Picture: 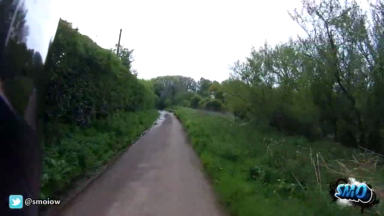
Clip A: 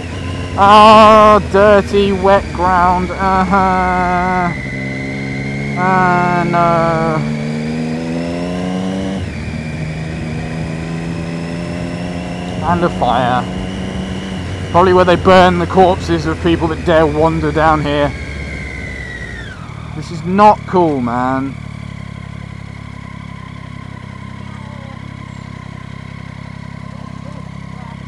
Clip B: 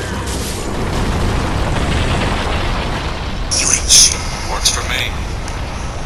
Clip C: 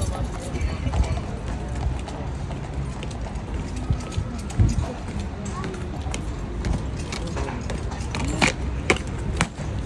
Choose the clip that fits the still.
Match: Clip A